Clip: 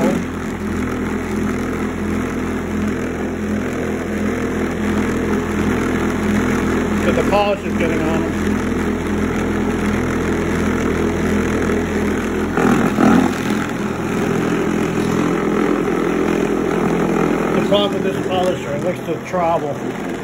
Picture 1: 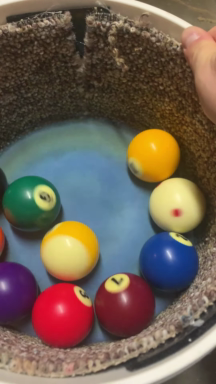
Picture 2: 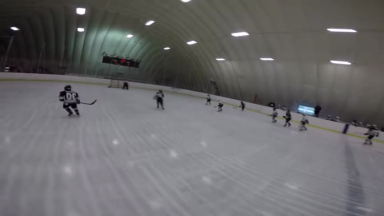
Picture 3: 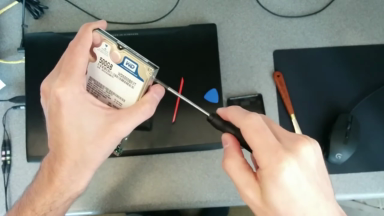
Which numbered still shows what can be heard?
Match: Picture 1